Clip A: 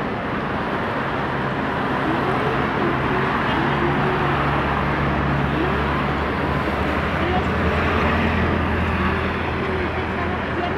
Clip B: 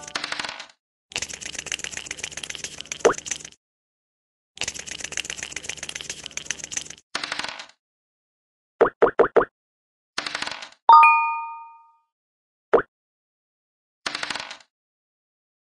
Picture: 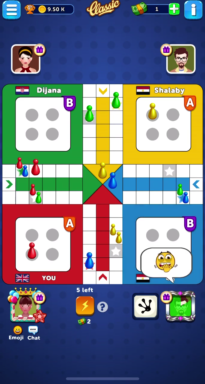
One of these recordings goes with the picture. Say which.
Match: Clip B